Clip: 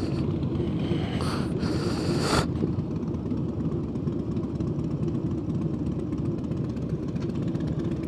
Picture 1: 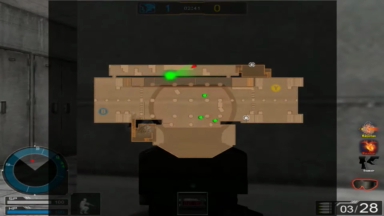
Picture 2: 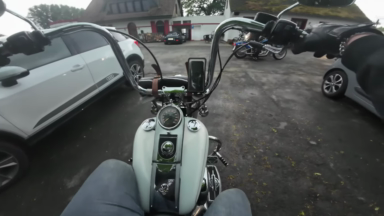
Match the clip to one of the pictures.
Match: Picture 2